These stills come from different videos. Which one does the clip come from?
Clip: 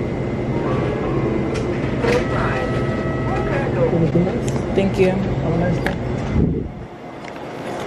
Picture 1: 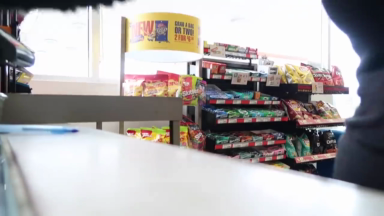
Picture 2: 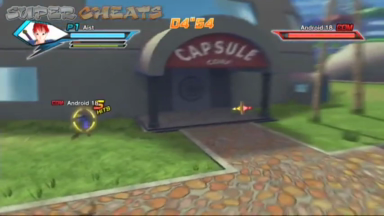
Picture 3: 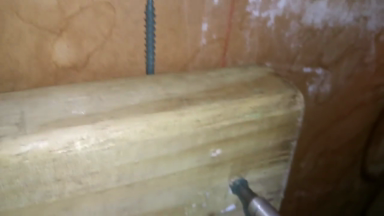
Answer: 1